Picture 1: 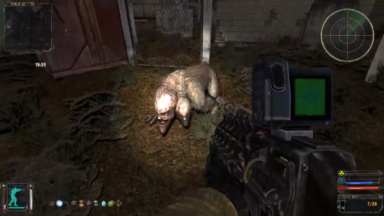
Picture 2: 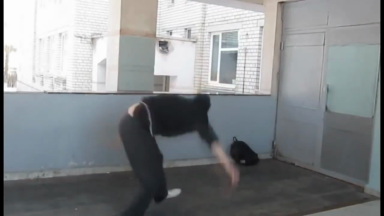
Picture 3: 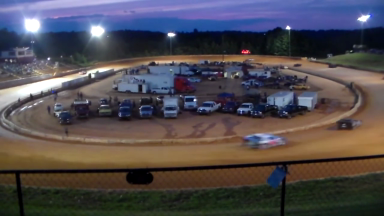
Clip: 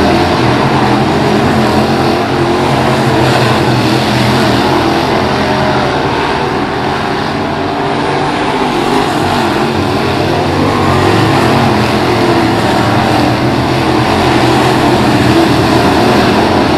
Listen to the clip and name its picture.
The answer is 3